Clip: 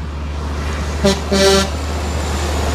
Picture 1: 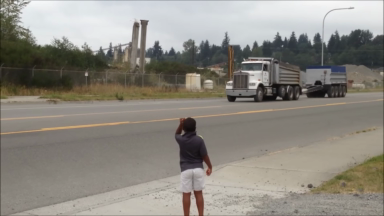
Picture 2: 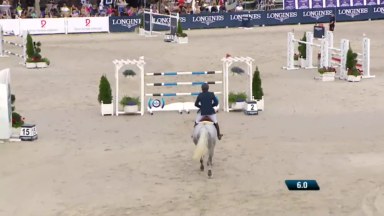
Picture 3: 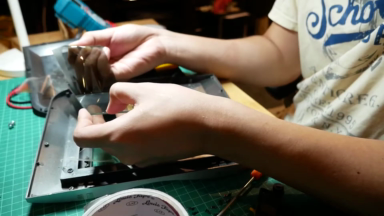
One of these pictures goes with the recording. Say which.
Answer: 1